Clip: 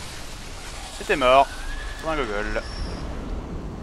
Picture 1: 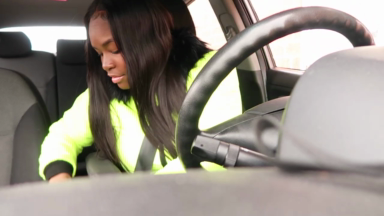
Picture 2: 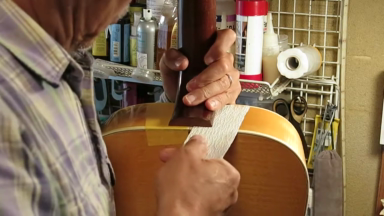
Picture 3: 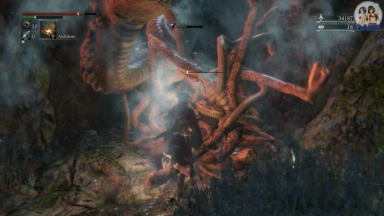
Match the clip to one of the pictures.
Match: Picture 3